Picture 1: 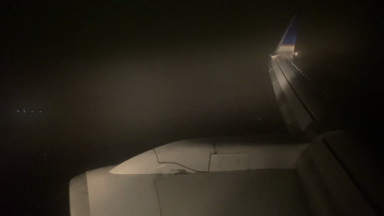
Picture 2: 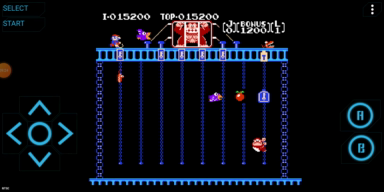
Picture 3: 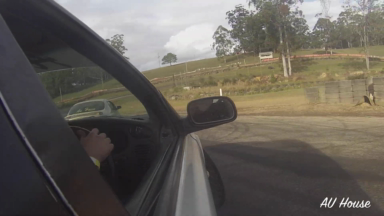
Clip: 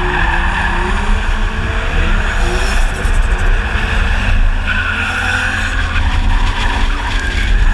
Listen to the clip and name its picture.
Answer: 3